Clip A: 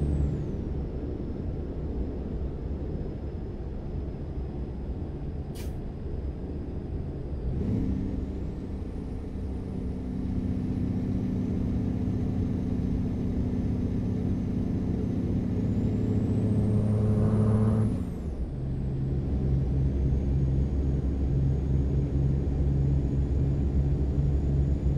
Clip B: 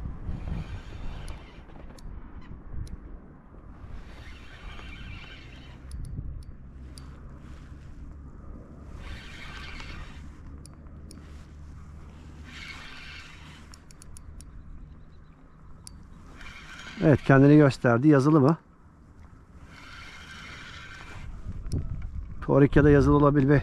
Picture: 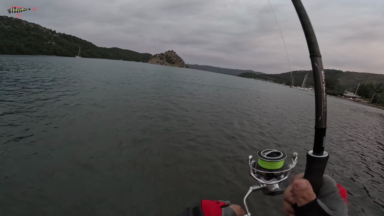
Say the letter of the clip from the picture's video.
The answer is B